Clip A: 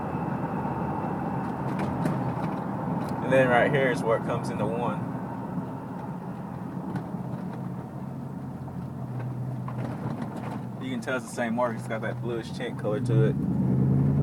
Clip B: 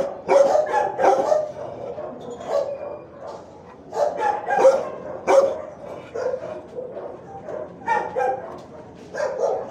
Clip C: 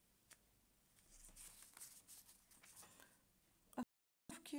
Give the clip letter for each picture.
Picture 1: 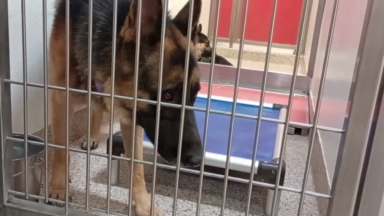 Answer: B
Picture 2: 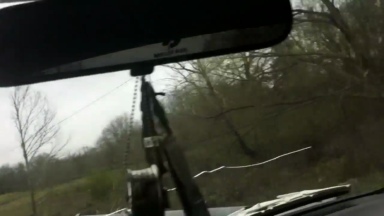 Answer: A